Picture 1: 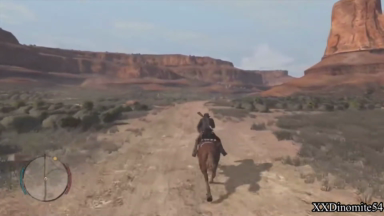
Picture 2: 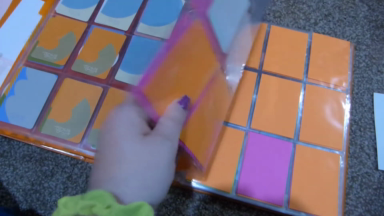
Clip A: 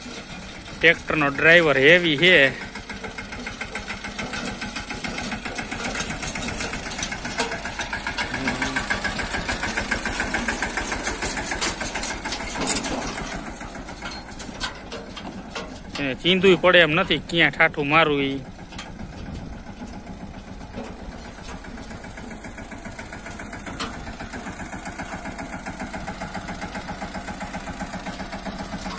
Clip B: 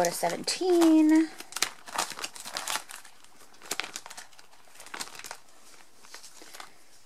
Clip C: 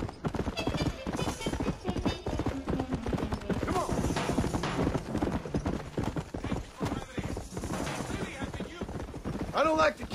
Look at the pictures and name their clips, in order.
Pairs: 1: C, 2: B